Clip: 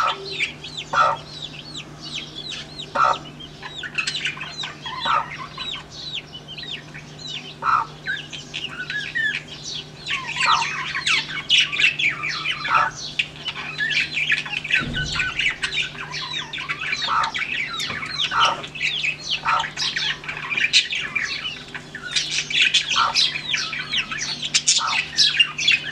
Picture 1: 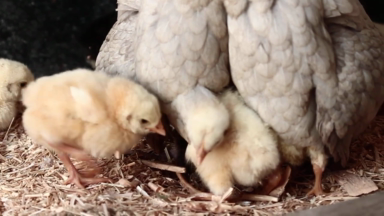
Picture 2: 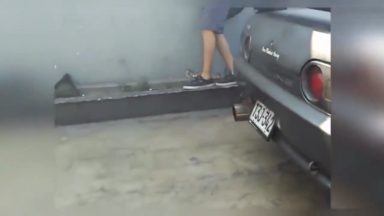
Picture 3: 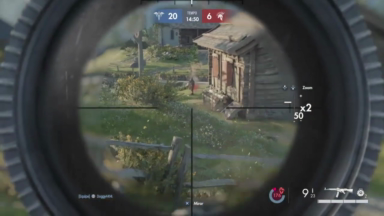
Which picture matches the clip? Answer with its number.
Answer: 1